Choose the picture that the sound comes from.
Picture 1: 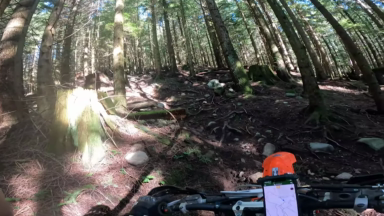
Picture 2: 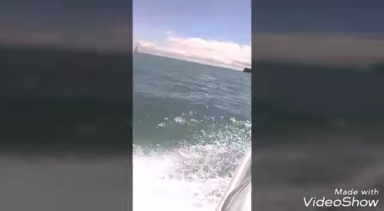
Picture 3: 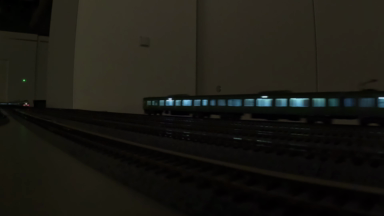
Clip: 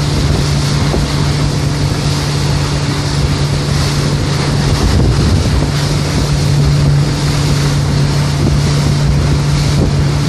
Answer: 2